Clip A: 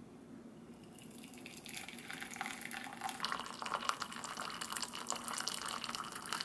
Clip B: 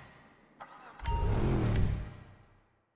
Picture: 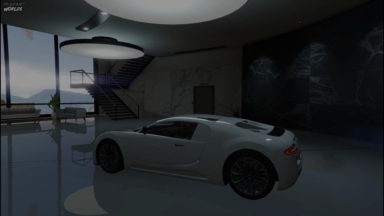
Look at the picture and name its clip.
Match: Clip B